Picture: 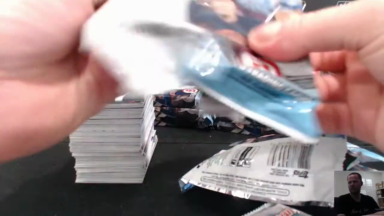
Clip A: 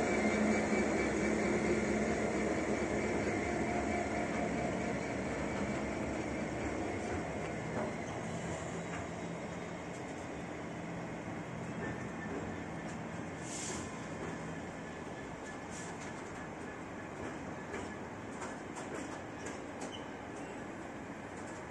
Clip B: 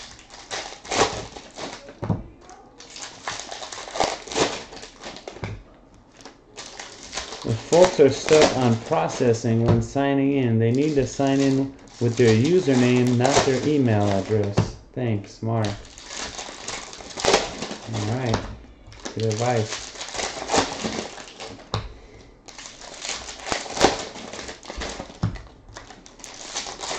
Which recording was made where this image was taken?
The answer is B